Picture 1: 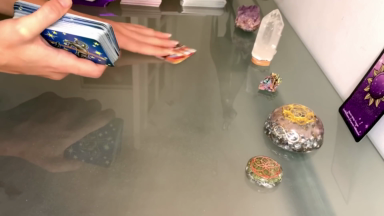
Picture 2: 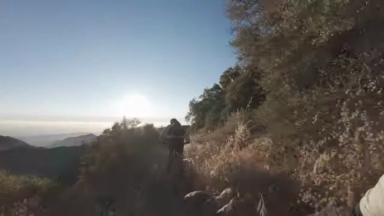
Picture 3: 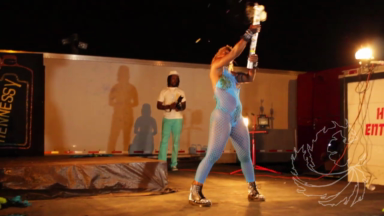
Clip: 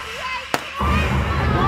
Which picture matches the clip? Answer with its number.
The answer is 3